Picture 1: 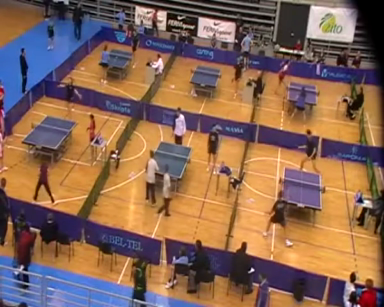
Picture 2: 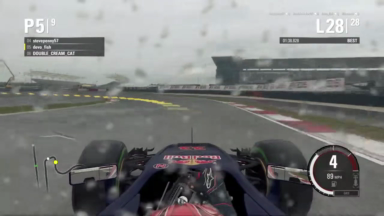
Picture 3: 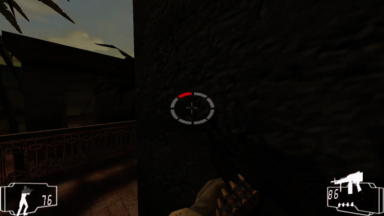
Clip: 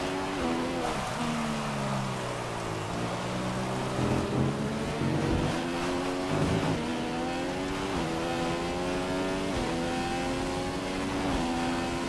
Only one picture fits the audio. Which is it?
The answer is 2